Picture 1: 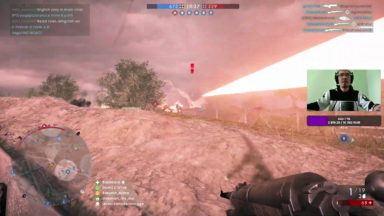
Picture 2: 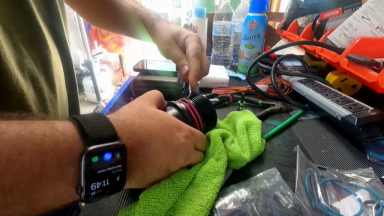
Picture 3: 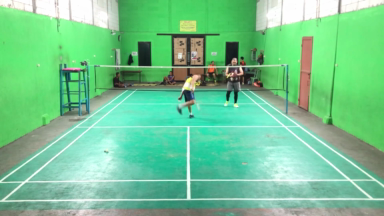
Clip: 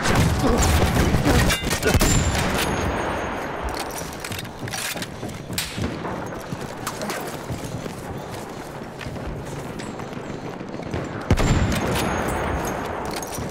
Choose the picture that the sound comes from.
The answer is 1